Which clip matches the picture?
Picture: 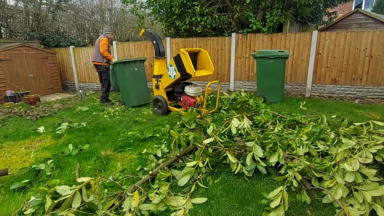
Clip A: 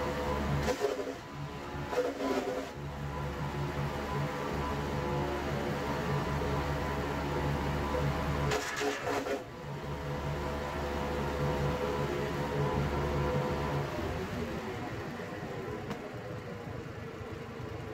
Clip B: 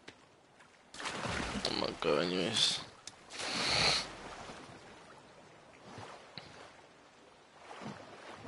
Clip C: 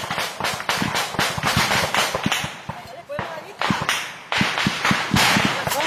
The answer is A